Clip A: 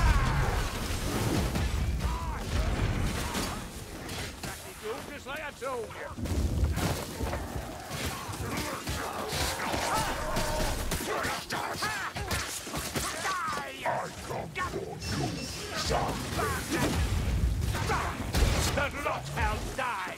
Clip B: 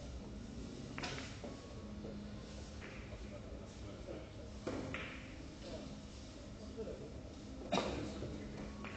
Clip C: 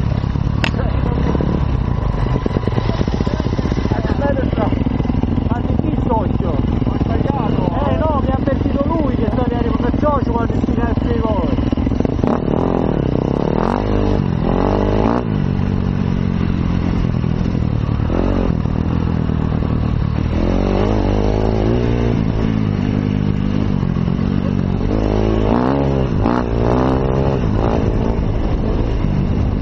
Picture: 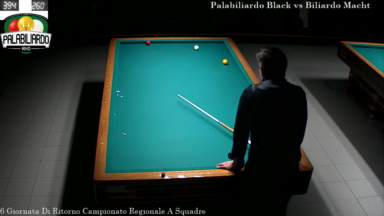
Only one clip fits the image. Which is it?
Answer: B